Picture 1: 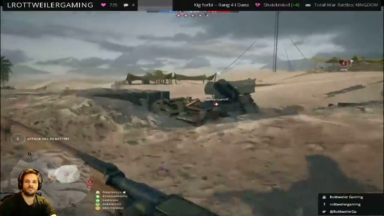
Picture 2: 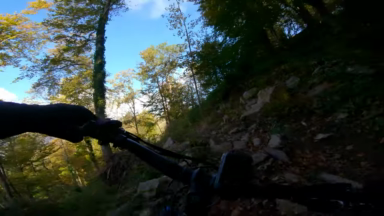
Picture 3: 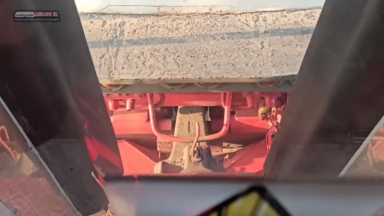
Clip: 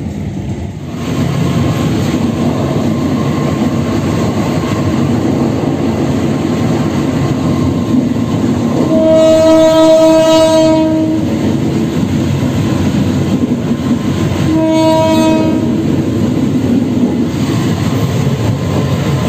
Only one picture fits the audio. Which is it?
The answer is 3